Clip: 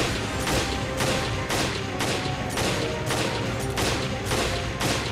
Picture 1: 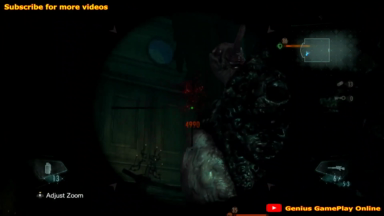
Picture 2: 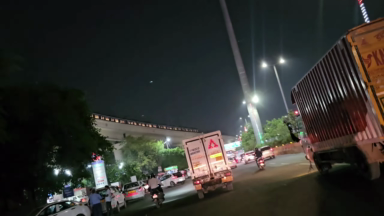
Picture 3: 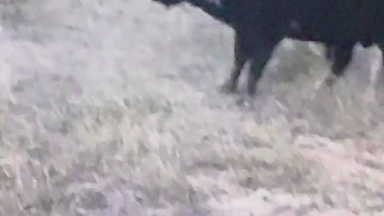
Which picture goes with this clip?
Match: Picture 1